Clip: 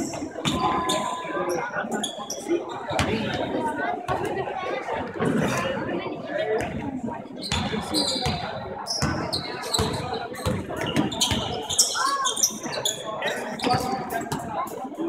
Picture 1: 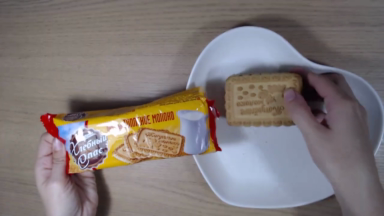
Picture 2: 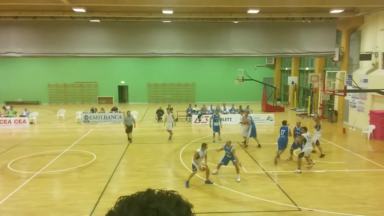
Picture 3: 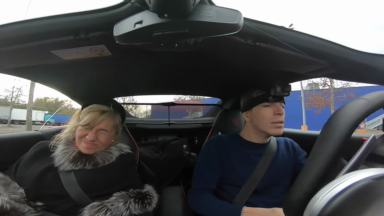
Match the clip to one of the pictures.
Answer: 2